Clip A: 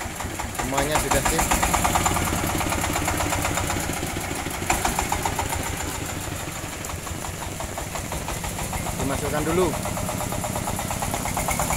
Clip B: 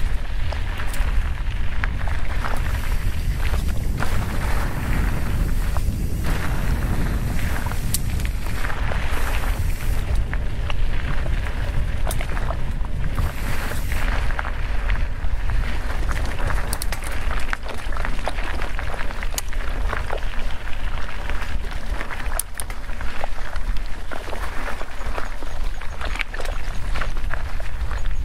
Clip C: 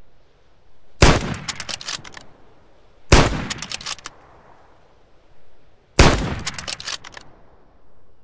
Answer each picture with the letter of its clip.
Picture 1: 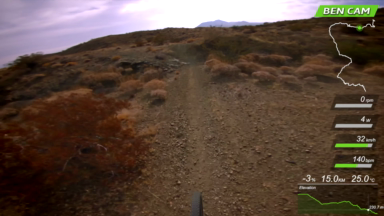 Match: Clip B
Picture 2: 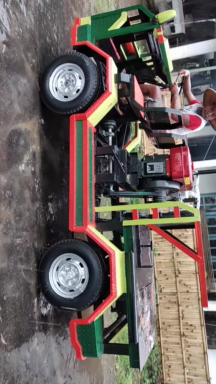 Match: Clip A